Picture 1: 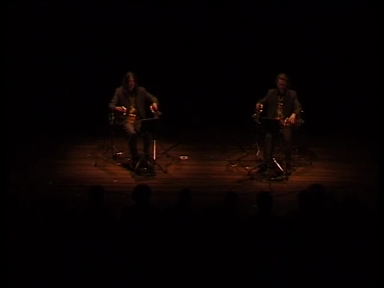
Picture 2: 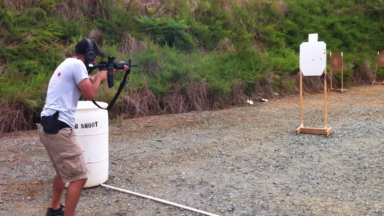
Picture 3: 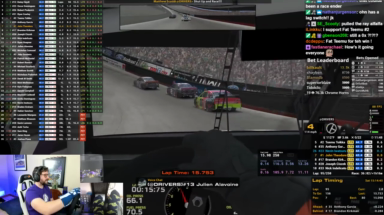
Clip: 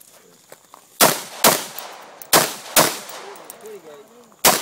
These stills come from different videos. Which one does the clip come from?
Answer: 2